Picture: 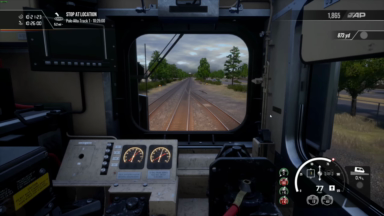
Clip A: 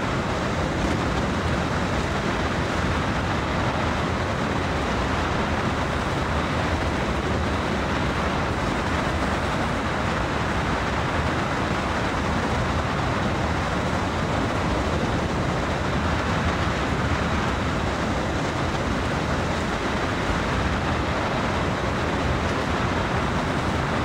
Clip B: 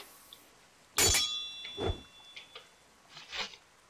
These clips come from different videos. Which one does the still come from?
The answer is A